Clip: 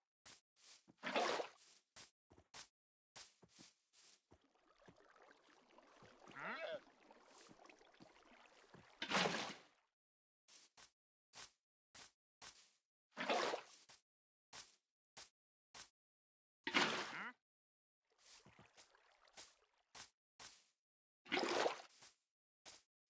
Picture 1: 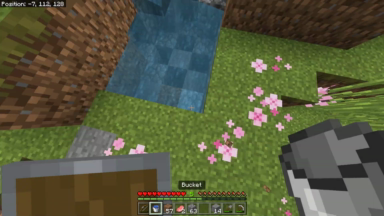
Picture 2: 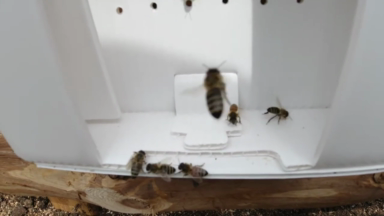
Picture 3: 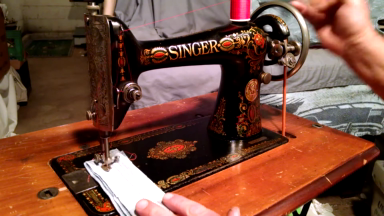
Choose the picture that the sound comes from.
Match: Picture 1